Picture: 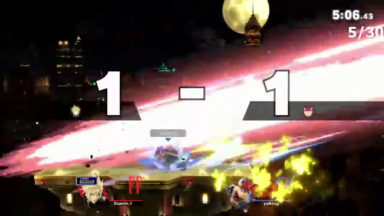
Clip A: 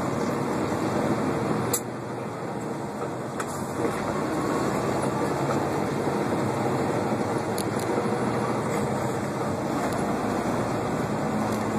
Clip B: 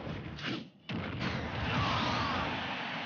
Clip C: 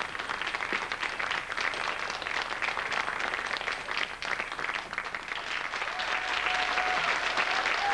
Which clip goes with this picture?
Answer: B